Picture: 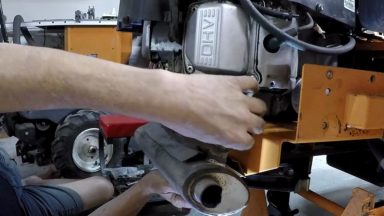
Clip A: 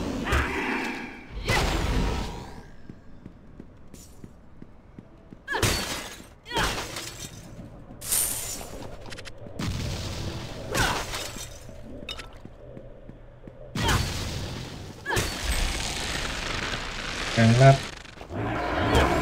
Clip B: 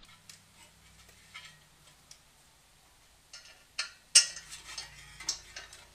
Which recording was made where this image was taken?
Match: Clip B